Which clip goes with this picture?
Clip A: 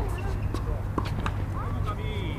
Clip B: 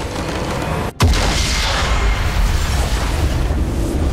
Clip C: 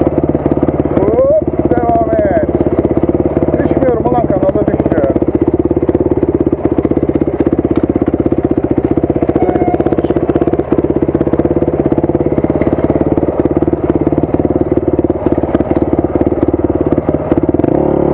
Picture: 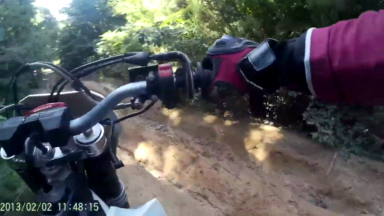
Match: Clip C